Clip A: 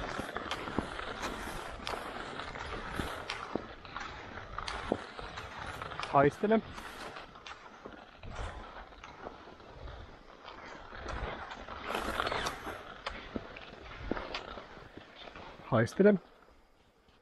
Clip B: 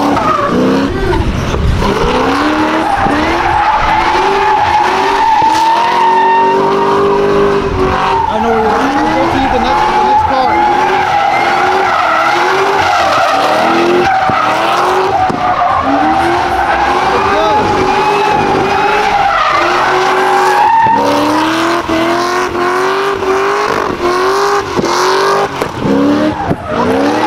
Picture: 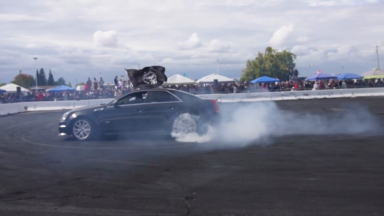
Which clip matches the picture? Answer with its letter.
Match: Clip B